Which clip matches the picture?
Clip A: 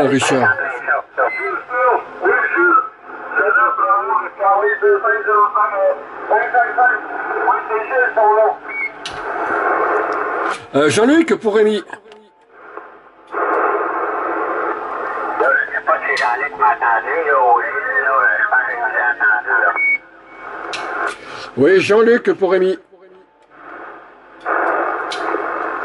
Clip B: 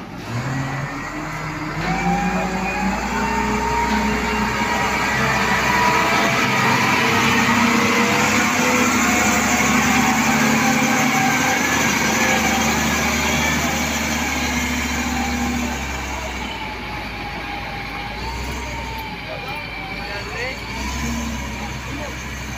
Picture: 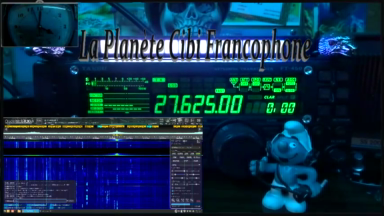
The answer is A